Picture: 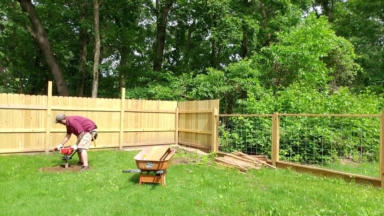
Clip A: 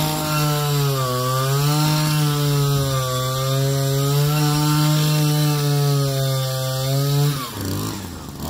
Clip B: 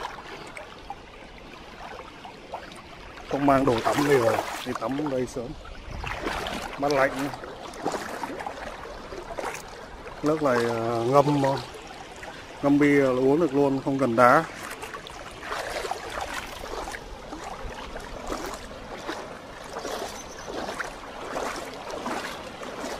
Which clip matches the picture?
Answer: A